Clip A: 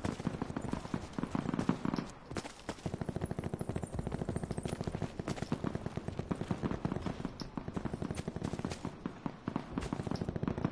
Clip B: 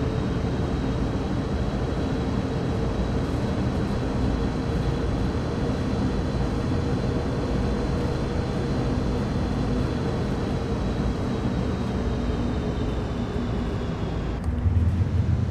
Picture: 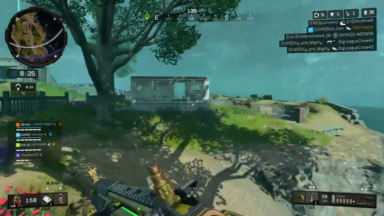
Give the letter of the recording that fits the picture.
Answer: A